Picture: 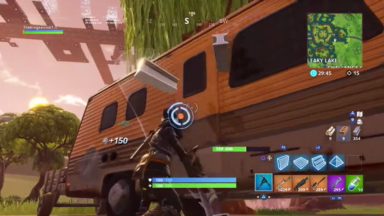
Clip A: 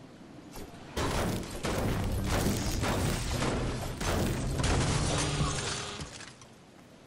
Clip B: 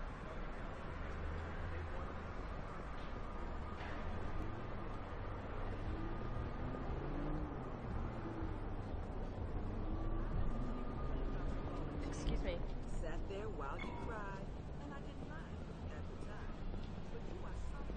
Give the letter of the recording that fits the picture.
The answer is A